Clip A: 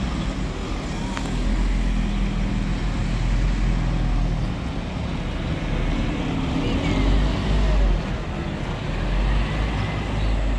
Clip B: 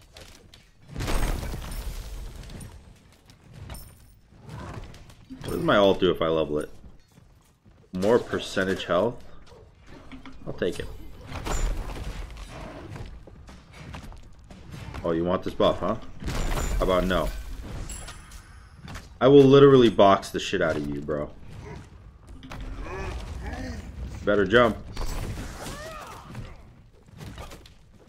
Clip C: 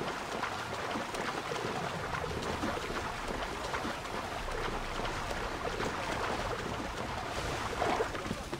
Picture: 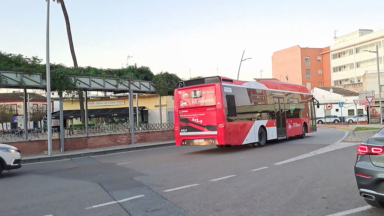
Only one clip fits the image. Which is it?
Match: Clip A